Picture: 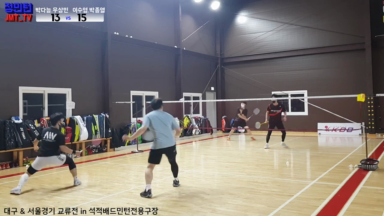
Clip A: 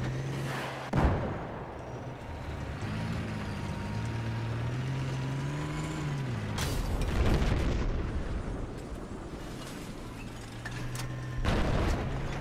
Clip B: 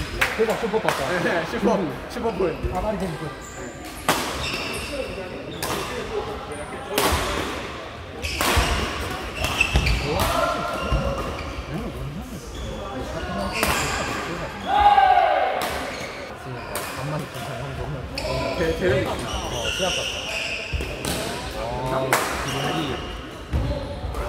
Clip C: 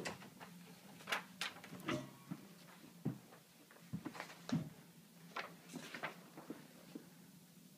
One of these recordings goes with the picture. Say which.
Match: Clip B